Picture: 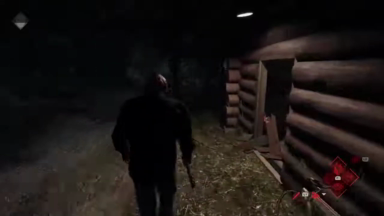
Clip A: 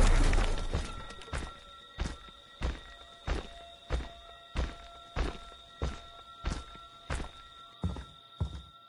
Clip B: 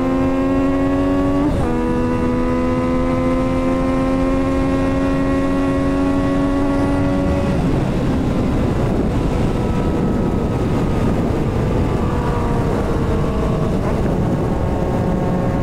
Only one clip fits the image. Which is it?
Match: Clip A